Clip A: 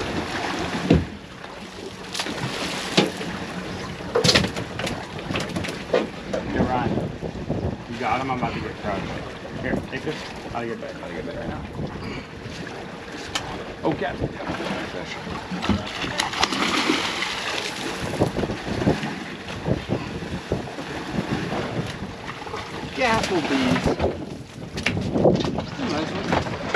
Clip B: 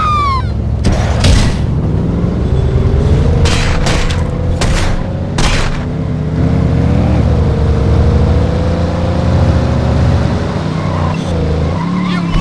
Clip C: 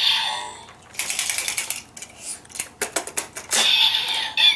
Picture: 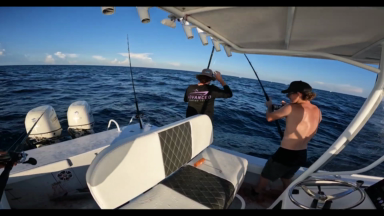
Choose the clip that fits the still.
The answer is A